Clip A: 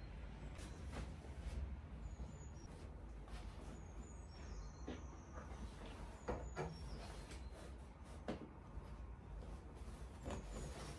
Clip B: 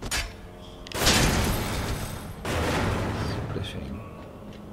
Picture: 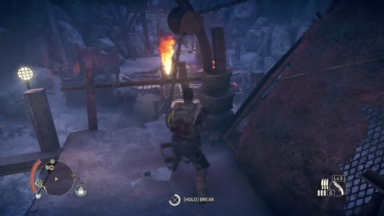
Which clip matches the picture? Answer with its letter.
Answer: B